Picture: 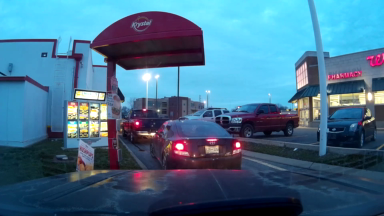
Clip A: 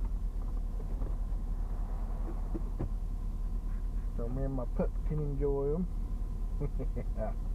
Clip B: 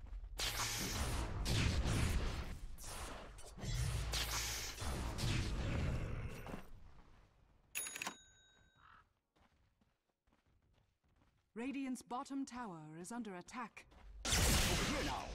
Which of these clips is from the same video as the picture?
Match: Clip A